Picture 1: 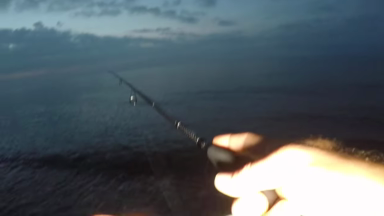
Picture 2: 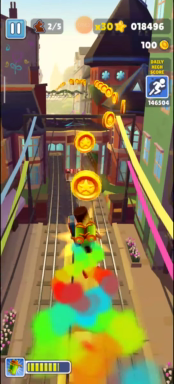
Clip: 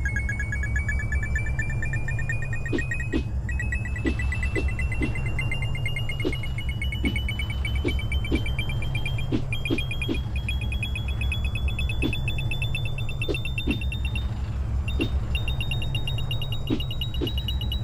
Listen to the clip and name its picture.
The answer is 2